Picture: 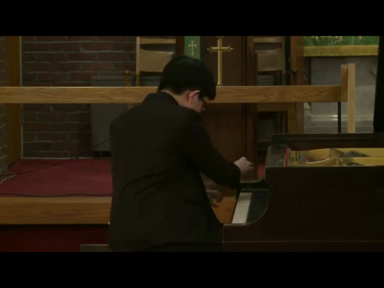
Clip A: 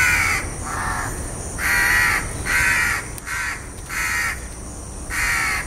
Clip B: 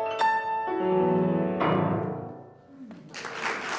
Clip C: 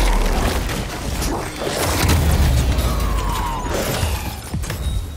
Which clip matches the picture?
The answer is B